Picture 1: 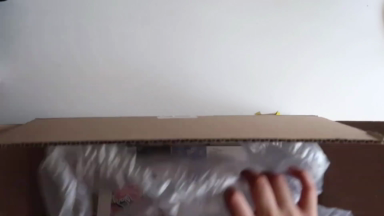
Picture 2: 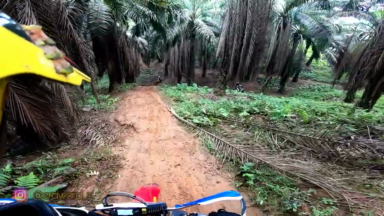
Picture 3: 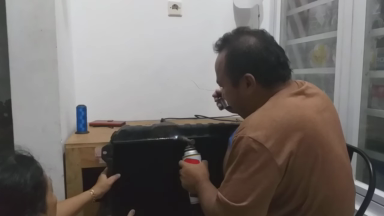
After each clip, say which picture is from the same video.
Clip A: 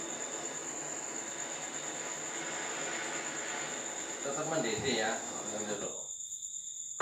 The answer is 3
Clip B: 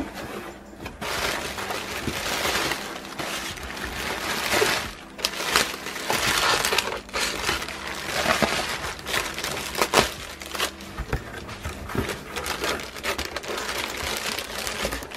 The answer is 1